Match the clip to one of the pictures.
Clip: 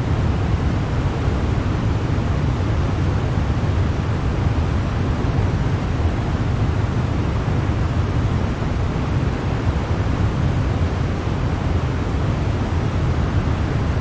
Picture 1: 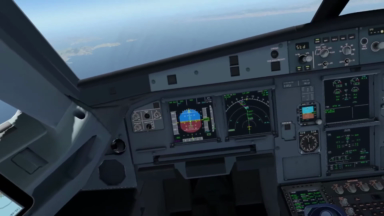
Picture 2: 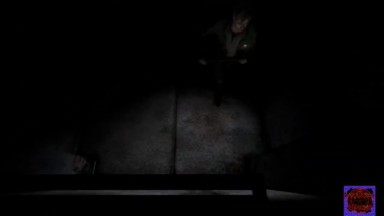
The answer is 1